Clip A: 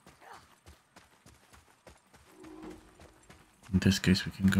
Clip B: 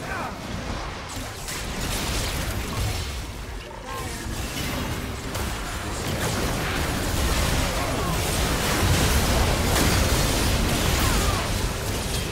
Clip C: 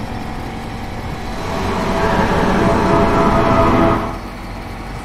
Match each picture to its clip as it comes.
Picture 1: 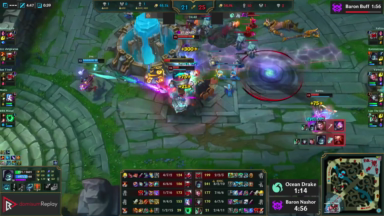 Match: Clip B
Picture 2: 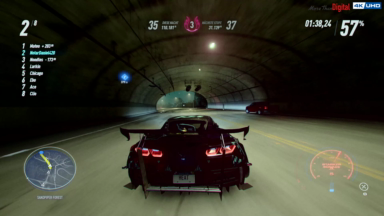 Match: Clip C